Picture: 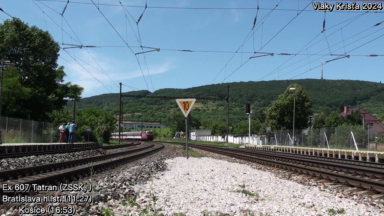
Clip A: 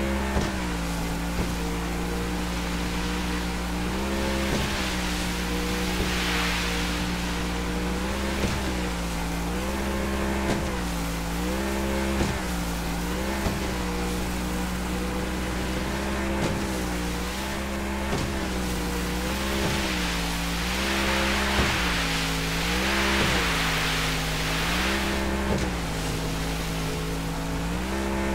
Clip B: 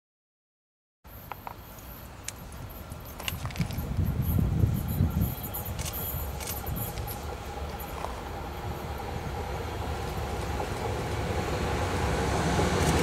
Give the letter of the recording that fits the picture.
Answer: B